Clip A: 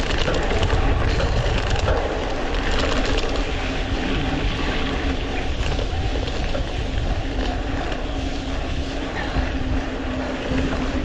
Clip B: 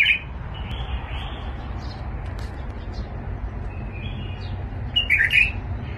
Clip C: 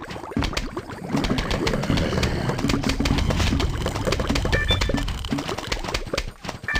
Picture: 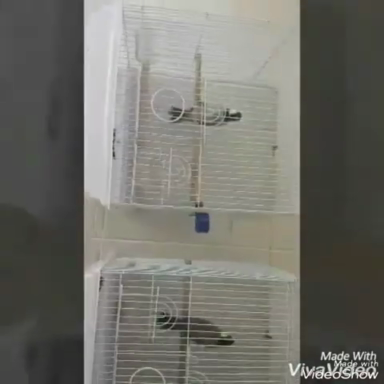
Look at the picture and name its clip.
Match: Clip B